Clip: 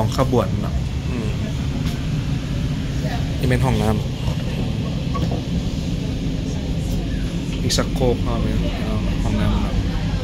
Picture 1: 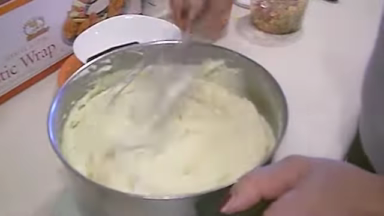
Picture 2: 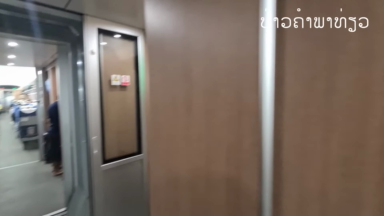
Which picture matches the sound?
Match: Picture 2